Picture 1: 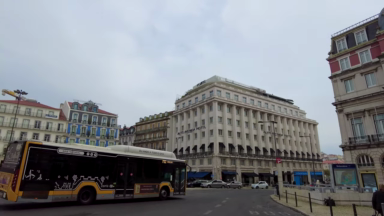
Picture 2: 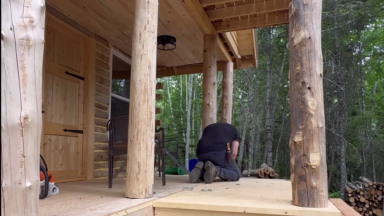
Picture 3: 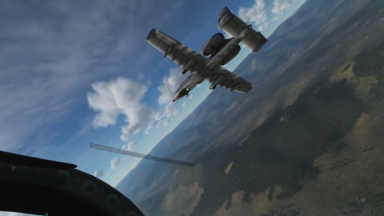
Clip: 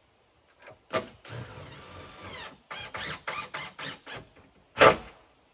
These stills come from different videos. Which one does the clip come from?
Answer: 2